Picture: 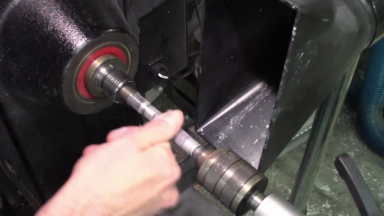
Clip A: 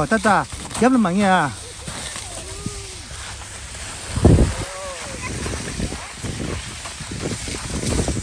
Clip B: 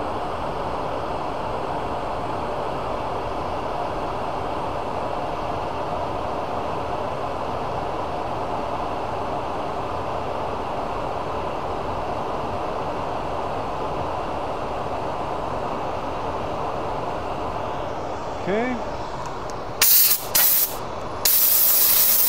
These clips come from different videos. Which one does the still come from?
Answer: B